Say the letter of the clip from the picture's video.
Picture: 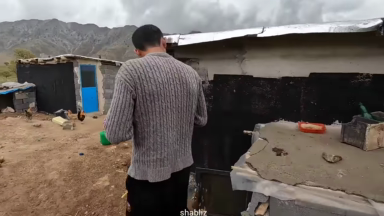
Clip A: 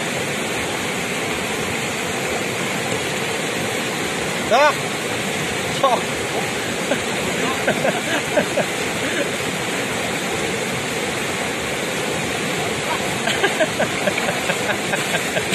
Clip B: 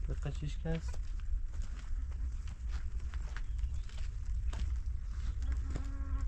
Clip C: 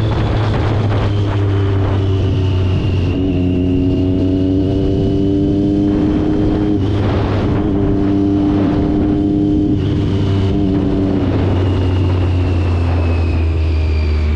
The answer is B